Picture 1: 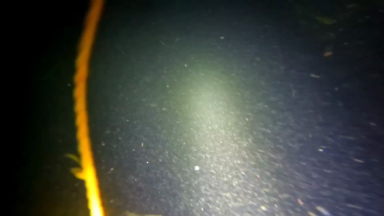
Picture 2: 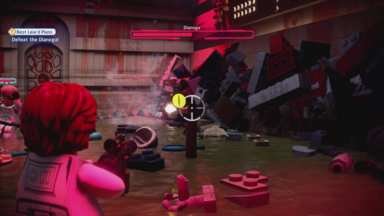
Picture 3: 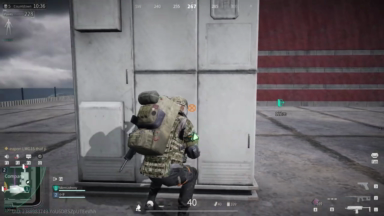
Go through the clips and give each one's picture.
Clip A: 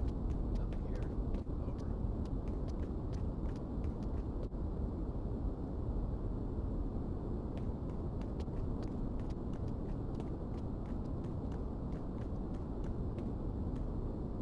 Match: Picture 3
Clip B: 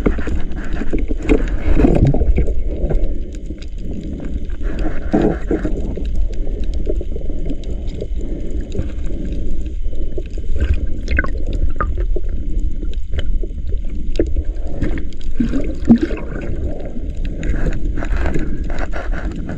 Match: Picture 1